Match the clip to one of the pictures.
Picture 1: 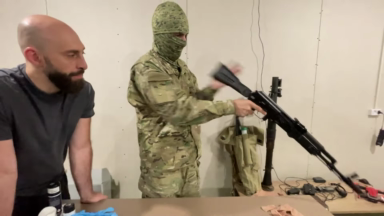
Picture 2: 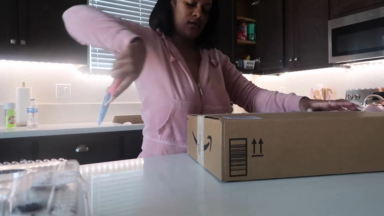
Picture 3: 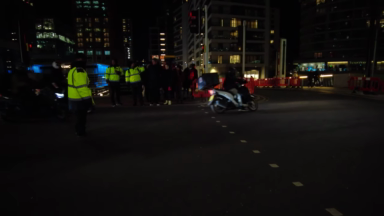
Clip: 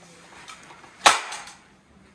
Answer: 1